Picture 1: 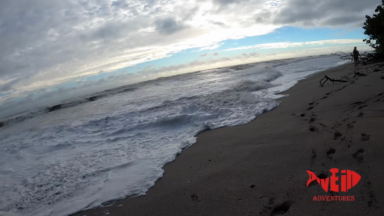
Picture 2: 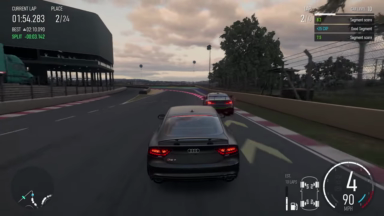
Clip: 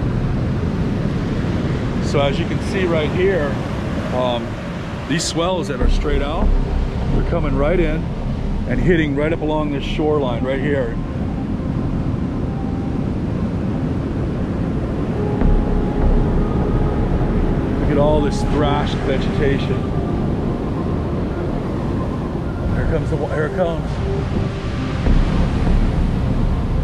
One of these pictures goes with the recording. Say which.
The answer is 1